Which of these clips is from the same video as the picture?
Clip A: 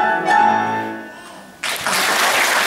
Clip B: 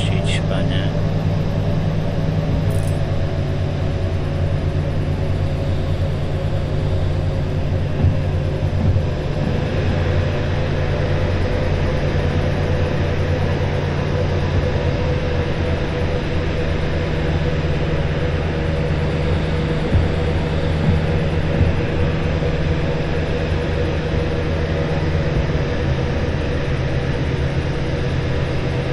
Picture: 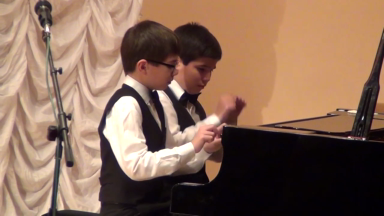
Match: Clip A